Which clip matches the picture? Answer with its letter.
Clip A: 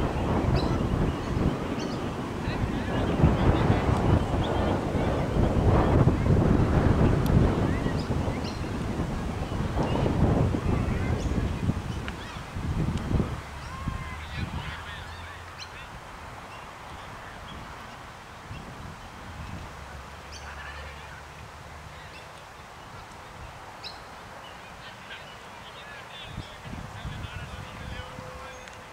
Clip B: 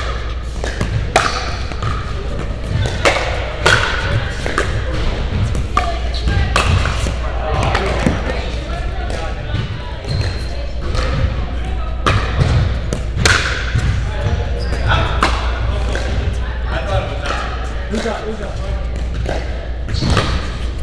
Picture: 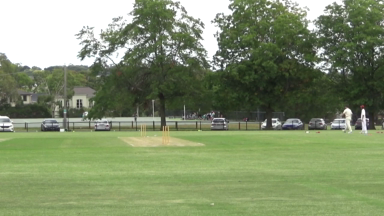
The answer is A